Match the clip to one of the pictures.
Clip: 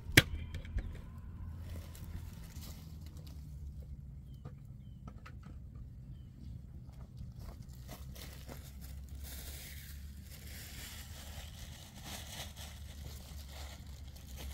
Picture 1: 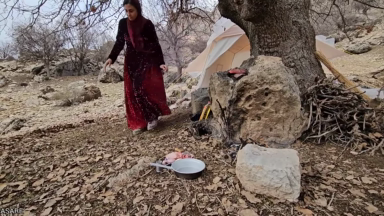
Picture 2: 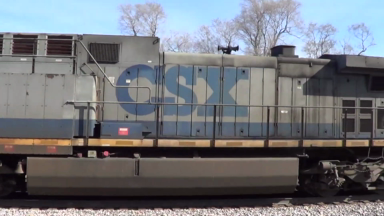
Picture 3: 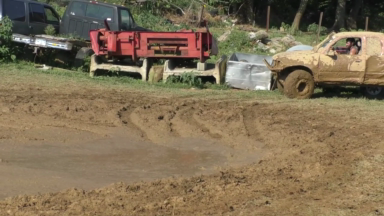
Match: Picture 1